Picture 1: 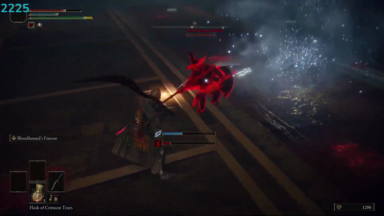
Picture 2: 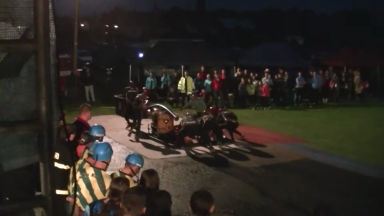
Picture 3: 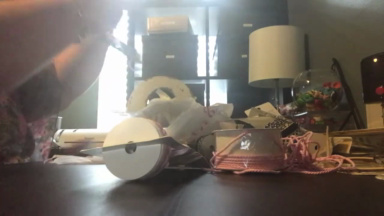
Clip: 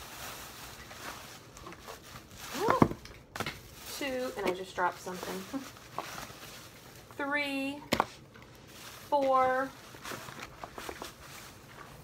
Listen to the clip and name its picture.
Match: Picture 3